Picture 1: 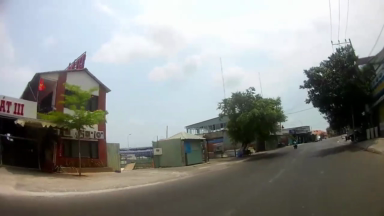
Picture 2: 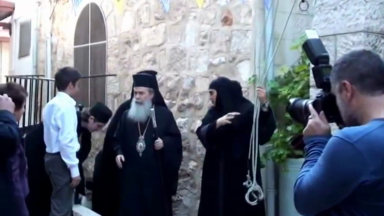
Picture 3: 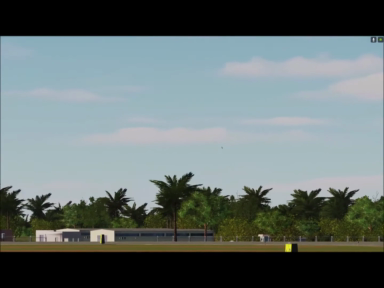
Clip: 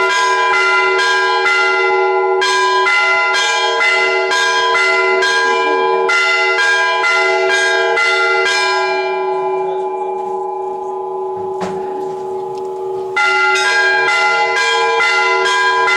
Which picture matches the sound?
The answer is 2